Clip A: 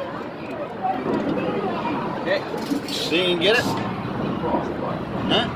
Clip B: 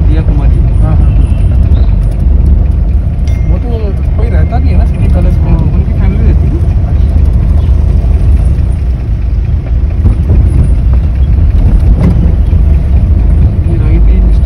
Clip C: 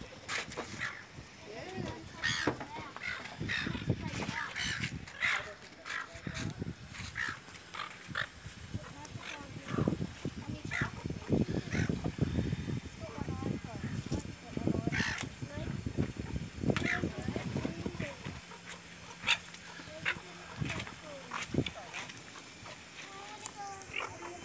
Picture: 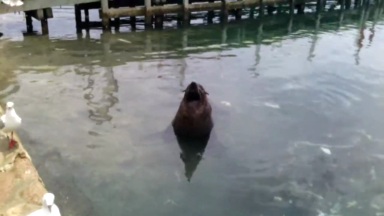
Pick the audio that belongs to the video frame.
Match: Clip C